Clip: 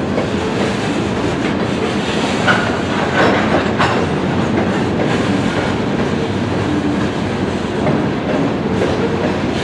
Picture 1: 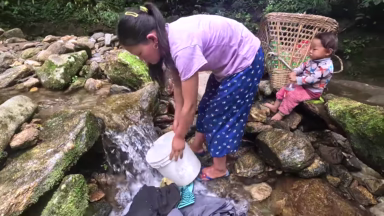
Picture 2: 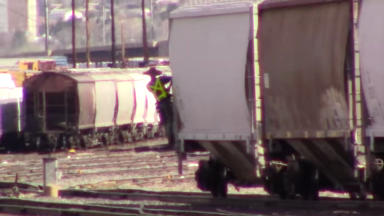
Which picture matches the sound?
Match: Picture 2